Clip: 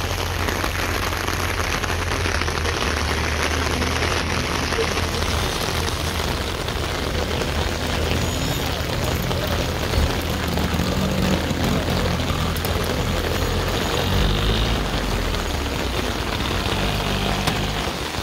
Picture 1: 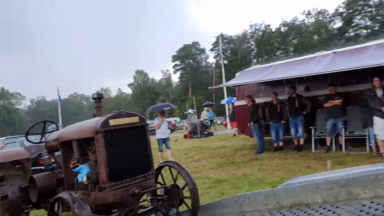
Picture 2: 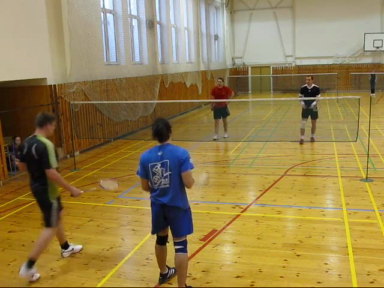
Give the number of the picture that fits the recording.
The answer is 1